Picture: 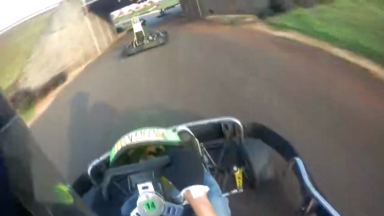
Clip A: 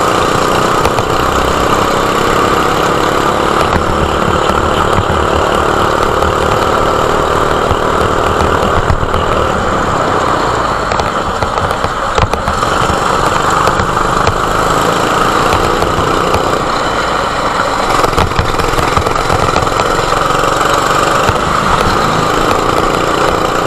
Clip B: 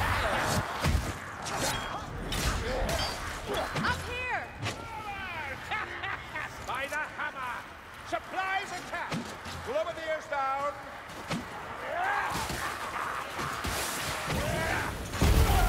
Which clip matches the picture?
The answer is A